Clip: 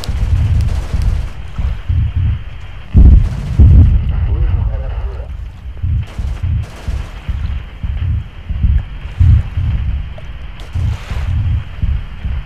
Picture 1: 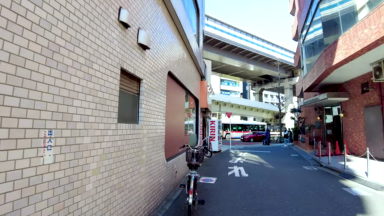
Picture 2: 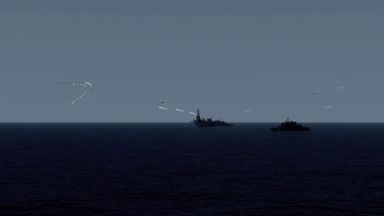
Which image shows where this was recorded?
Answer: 2